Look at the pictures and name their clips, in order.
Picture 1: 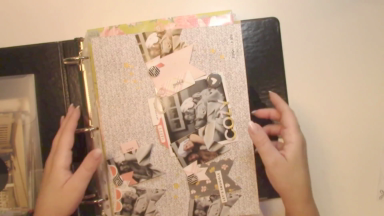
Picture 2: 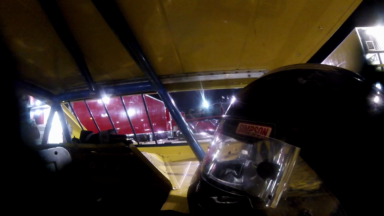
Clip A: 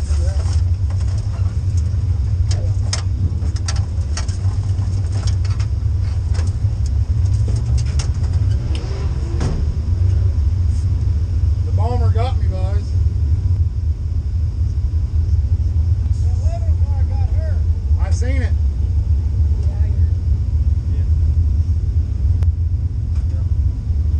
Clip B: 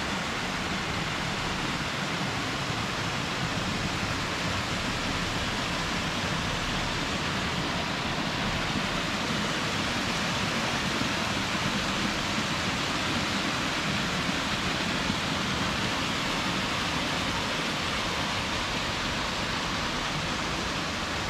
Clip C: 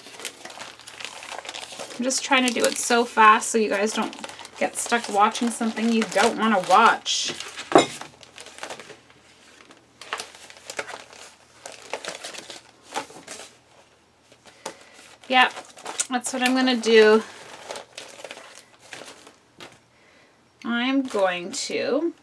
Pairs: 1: C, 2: A